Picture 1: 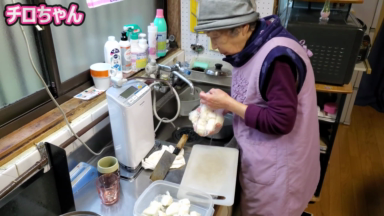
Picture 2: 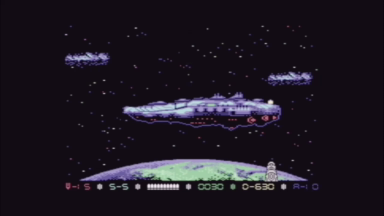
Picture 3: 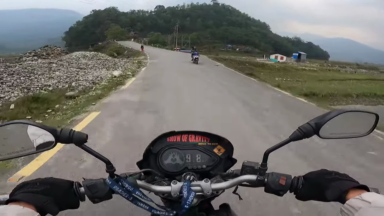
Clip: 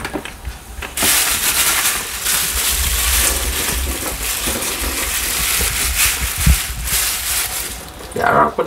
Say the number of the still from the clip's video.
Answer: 1